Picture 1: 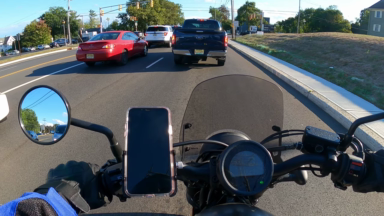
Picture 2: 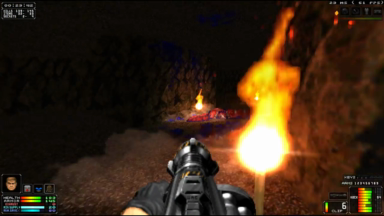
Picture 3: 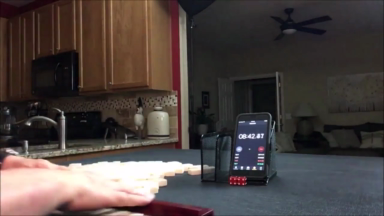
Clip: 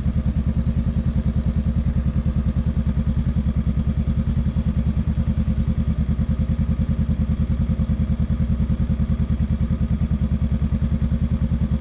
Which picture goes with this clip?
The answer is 1